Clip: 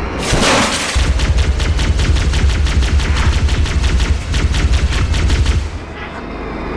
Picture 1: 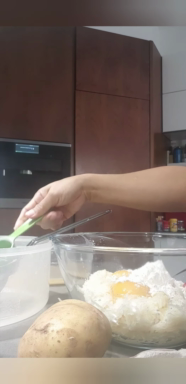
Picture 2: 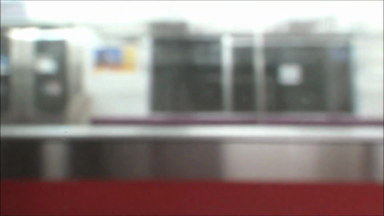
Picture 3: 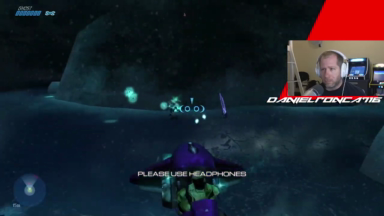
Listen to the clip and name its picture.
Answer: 3